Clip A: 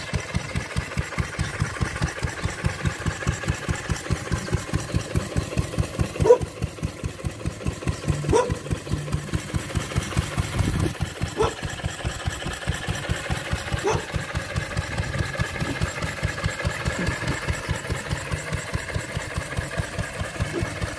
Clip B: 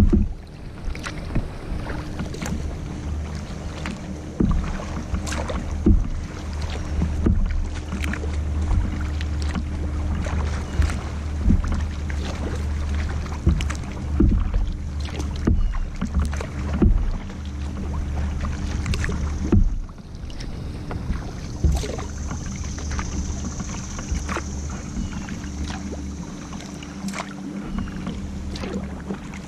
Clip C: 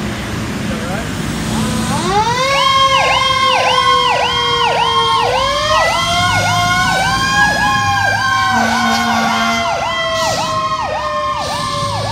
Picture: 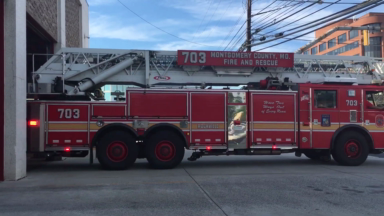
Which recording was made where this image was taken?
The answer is C